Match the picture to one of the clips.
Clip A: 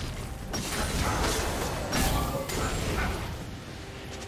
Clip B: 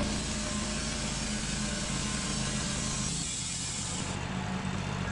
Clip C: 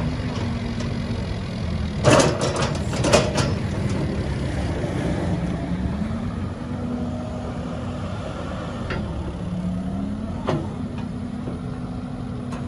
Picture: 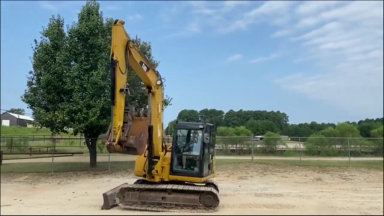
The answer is C